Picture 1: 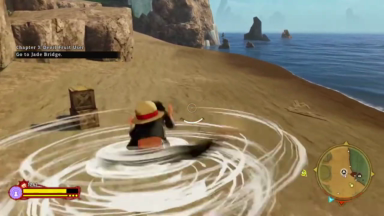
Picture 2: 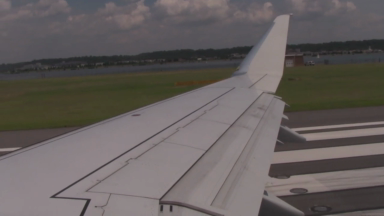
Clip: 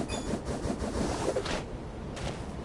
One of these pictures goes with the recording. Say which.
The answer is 1